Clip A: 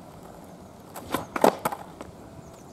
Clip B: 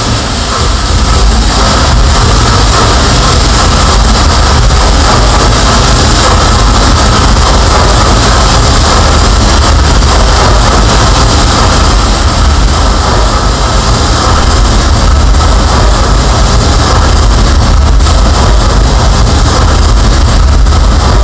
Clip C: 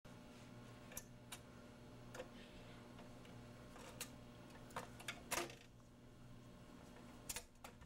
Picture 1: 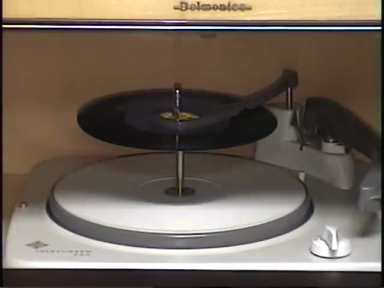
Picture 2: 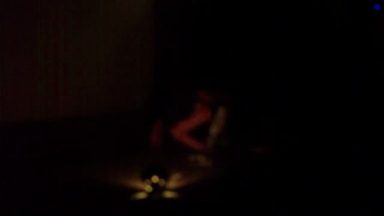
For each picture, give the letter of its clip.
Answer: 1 C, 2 B